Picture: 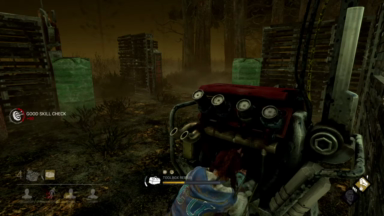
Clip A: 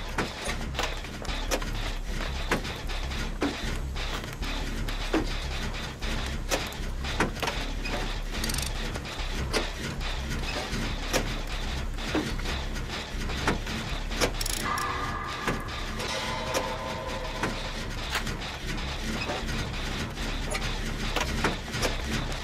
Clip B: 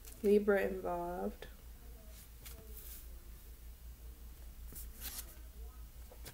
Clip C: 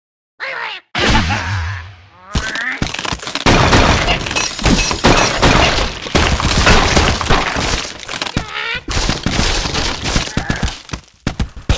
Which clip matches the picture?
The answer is A